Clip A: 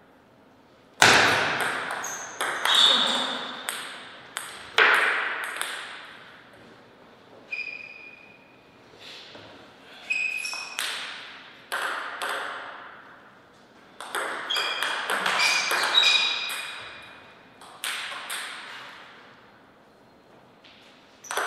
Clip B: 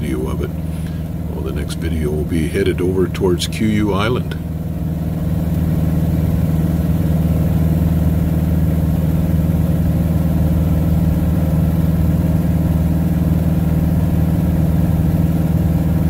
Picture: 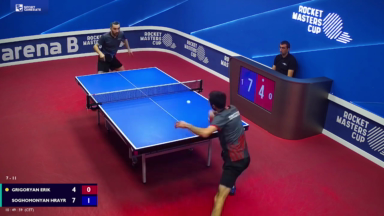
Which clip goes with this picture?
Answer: A